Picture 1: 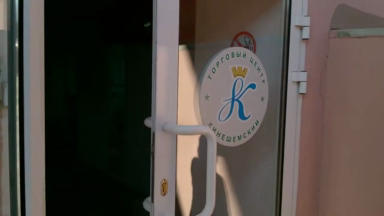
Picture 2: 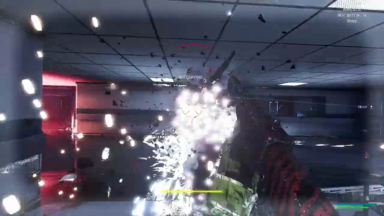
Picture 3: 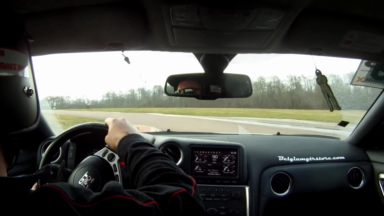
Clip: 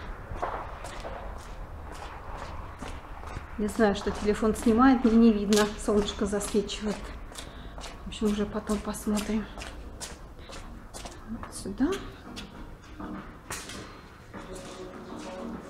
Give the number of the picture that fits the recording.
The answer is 1